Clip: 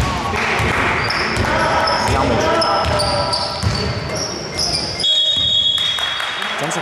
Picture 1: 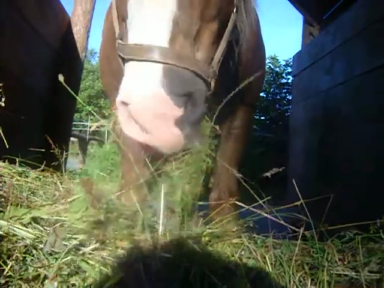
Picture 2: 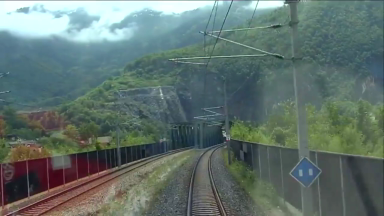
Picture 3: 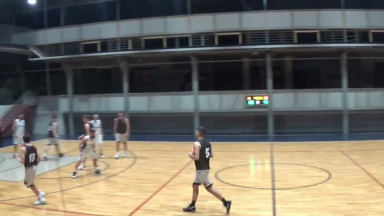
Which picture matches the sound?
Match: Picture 3